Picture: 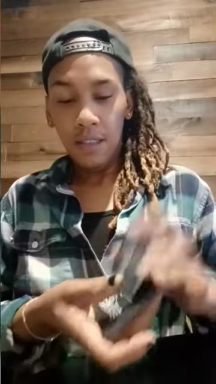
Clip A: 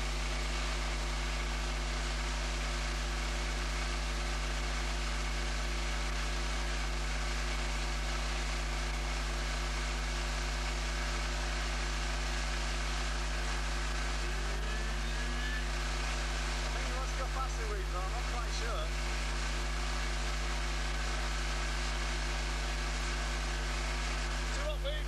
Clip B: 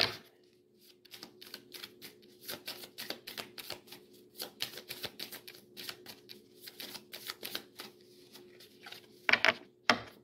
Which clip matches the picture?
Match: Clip B